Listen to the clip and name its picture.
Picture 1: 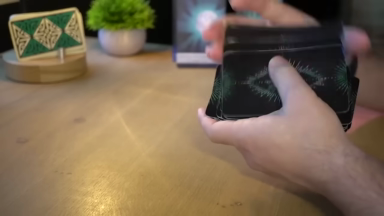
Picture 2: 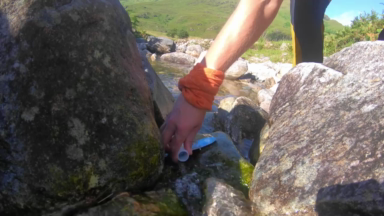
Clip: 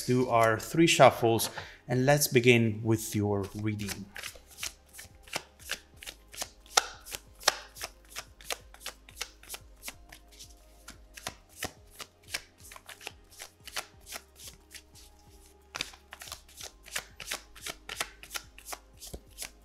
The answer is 1